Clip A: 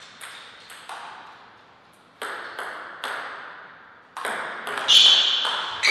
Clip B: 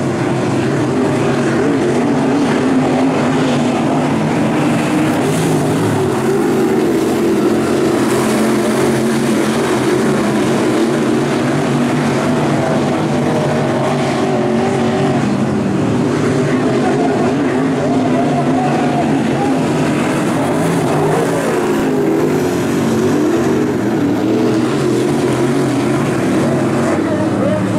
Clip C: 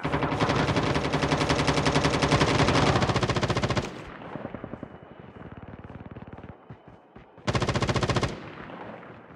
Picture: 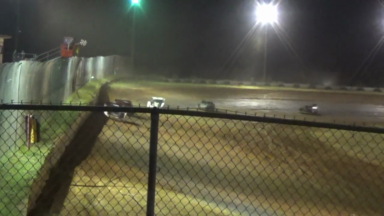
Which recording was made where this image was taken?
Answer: B